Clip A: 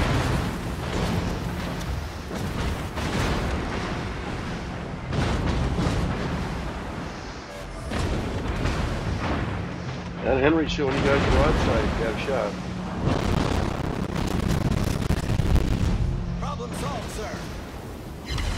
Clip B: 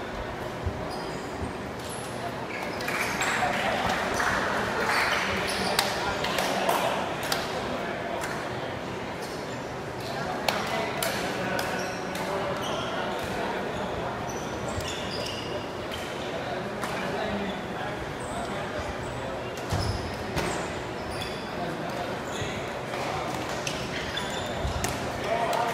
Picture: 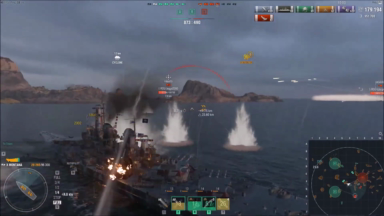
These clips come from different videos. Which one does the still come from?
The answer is A